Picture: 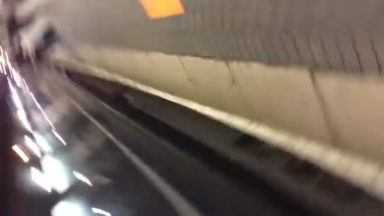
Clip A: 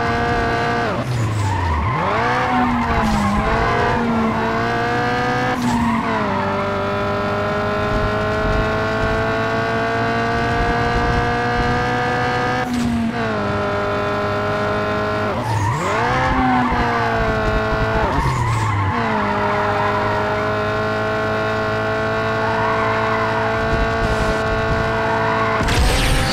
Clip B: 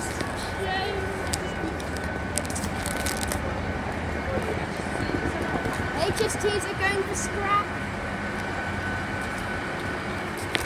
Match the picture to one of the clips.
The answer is B